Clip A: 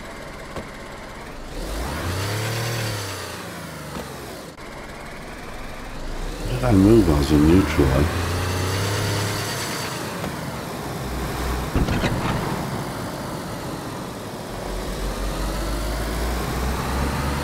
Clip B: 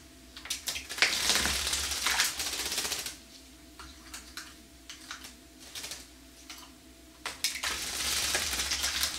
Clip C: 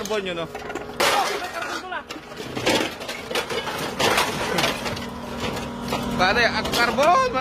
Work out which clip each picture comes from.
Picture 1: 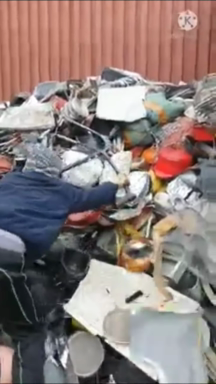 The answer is C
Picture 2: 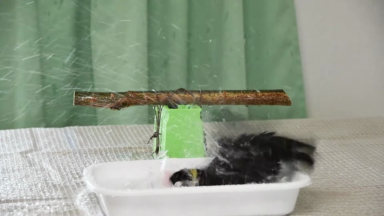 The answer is B